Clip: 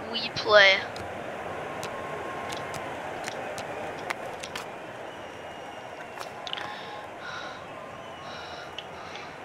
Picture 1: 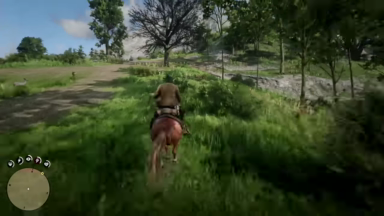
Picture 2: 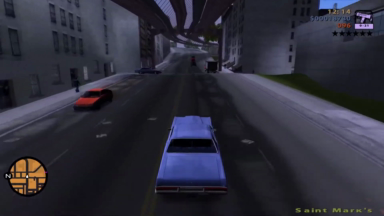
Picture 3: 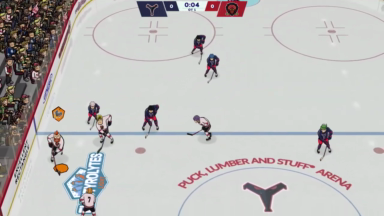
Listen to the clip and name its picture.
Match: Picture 3